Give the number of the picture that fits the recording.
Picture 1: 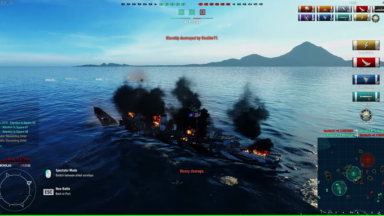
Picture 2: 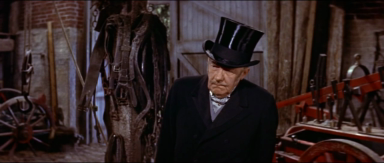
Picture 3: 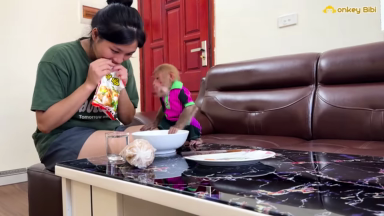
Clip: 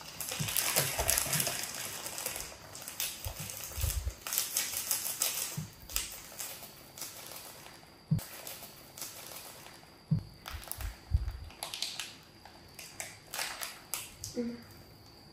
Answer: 3